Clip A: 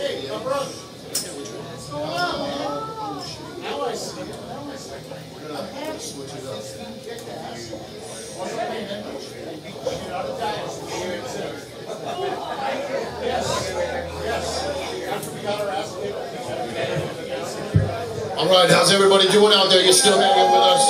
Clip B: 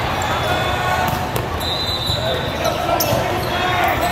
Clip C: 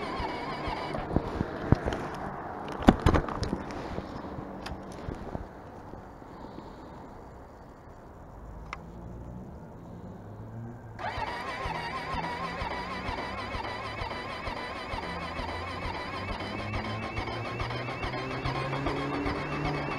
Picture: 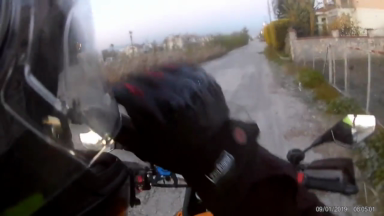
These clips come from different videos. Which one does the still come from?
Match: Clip C